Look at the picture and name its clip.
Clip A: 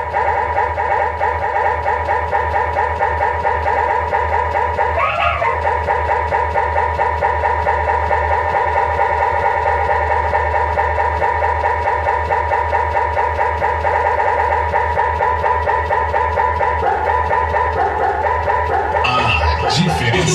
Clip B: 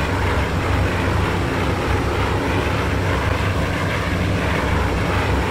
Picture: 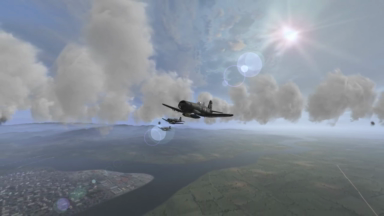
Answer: B